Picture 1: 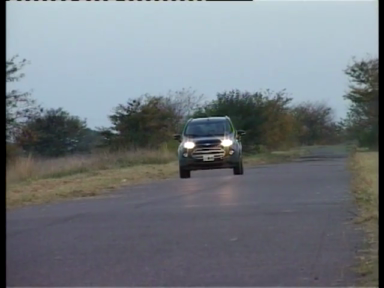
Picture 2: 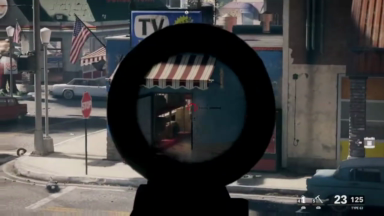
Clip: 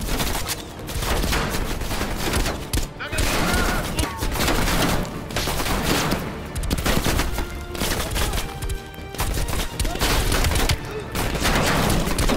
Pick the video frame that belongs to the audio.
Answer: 2